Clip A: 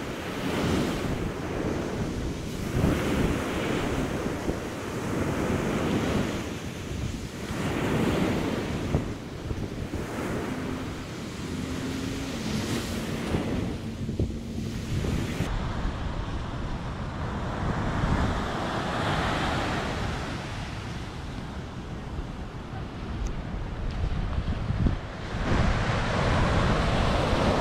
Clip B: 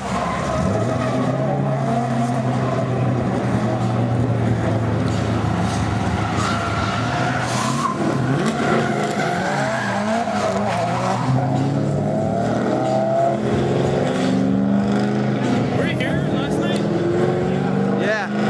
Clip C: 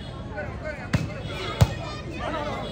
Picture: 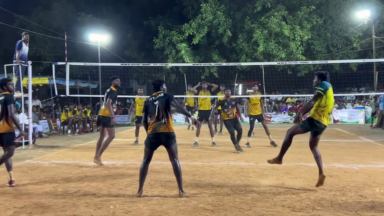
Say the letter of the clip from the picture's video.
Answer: C